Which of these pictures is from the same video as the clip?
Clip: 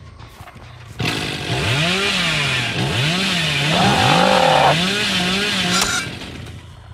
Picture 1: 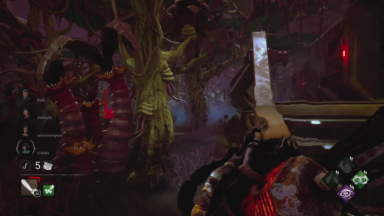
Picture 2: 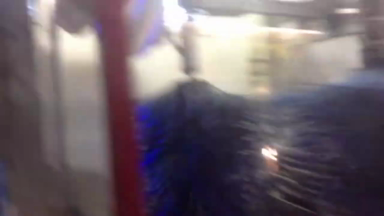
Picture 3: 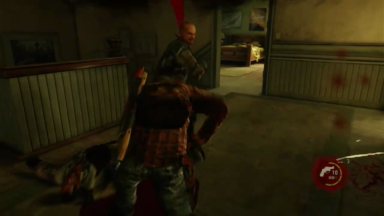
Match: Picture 1